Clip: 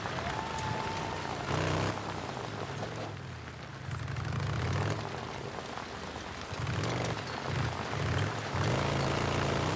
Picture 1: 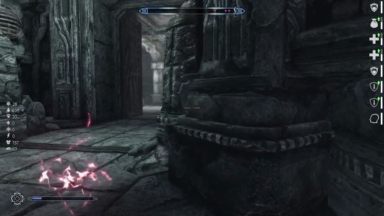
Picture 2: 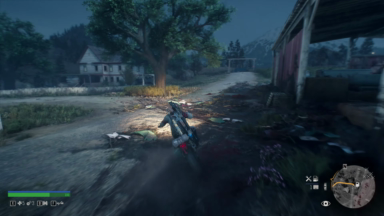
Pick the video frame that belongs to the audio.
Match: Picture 2